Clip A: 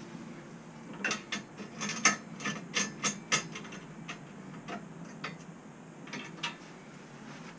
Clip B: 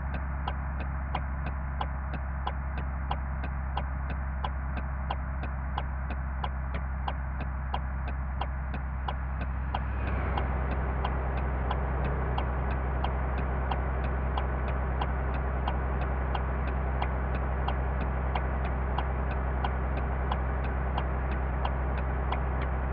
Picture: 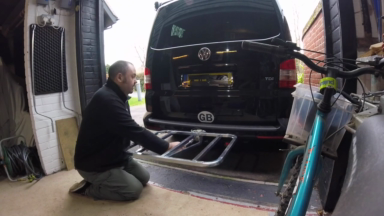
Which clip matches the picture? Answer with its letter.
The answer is A